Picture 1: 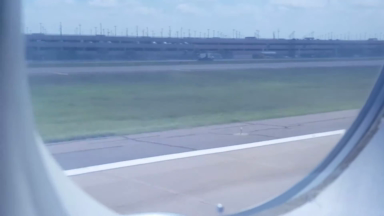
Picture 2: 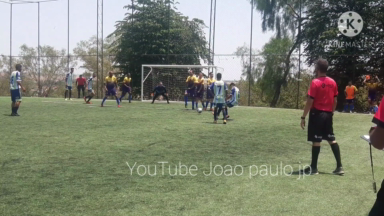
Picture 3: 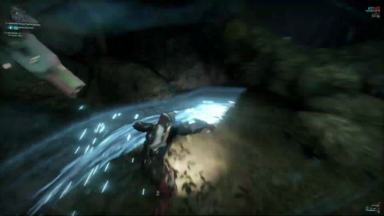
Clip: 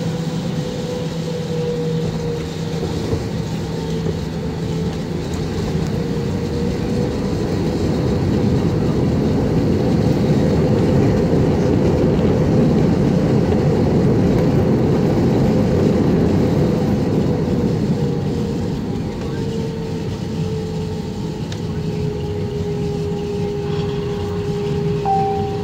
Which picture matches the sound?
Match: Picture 1